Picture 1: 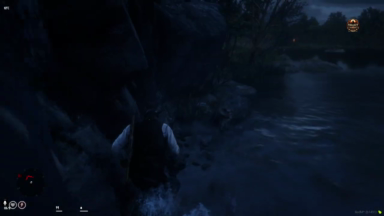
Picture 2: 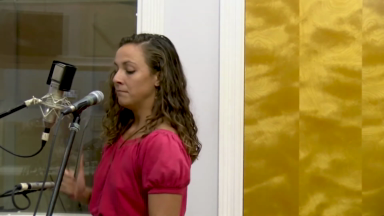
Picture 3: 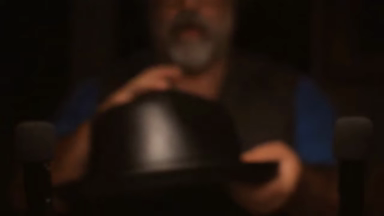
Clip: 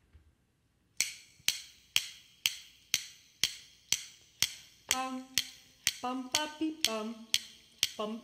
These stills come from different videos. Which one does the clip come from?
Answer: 2